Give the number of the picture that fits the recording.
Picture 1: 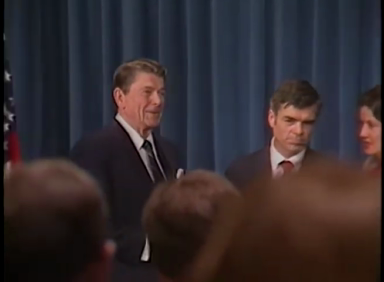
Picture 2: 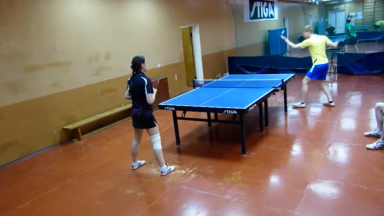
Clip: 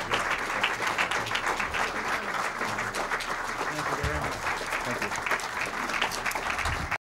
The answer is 1